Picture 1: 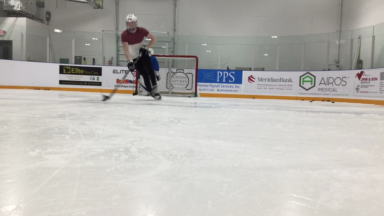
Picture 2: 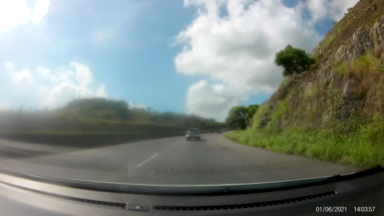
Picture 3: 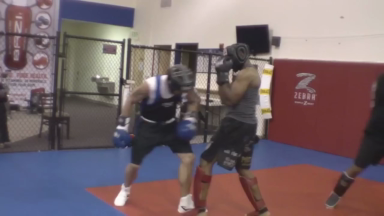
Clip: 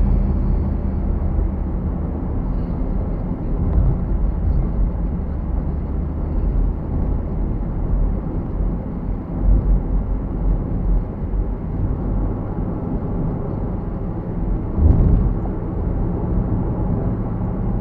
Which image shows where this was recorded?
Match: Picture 2